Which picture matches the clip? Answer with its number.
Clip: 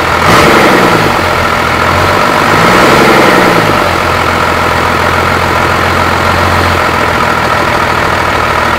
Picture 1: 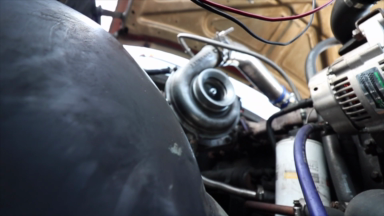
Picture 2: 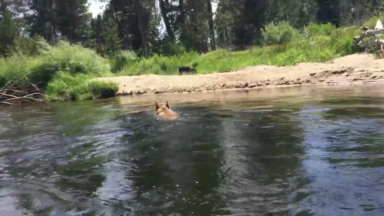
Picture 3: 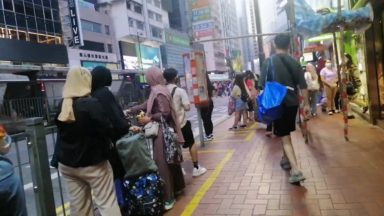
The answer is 1